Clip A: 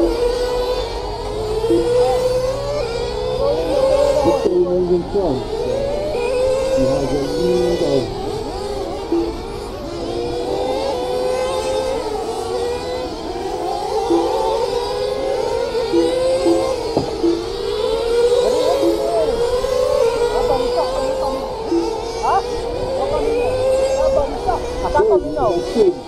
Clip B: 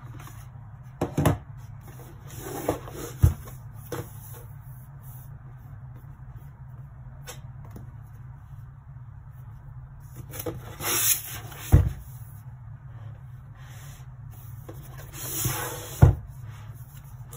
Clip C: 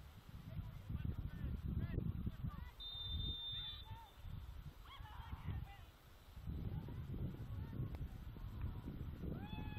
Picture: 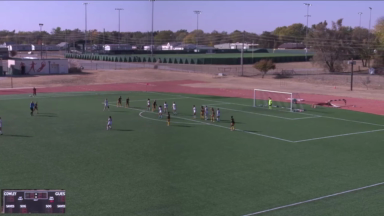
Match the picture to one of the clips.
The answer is C